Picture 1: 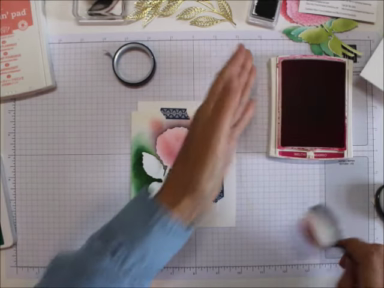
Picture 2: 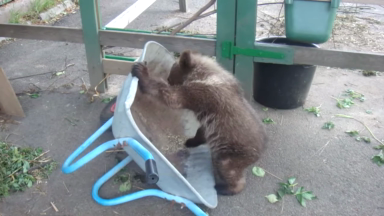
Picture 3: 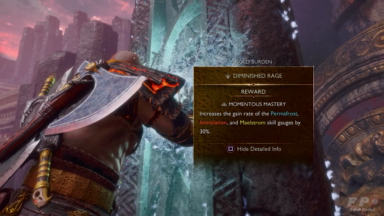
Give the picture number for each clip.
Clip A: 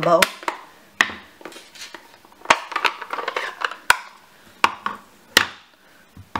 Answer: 1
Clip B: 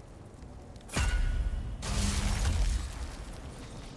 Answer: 3